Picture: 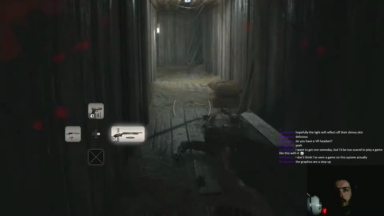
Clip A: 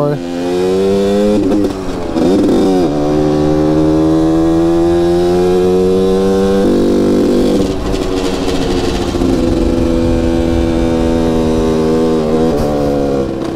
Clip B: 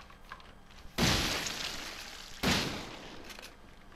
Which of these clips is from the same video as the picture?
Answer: B